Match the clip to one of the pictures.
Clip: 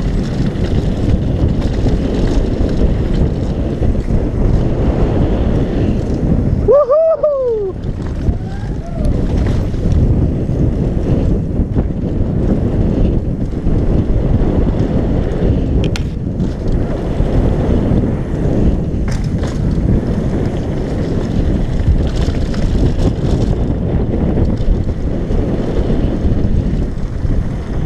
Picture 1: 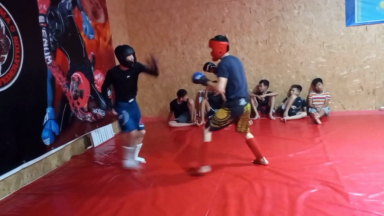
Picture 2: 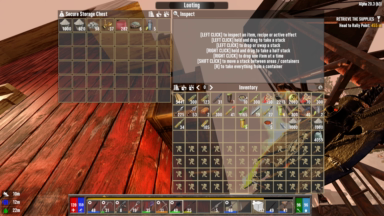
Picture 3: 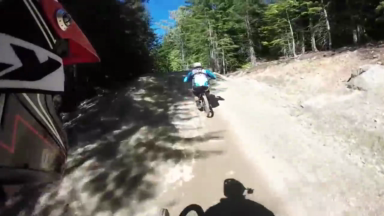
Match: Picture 3